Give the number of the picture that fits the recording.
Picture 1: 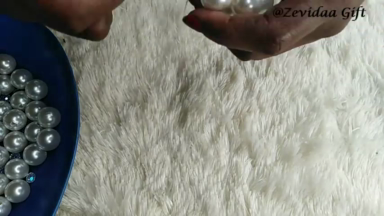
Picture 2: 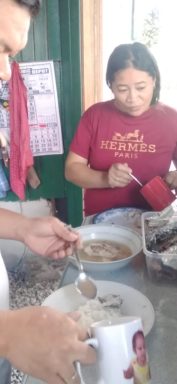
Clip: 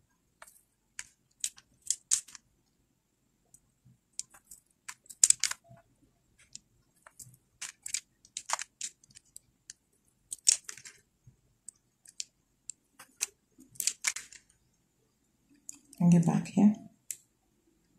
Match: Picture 1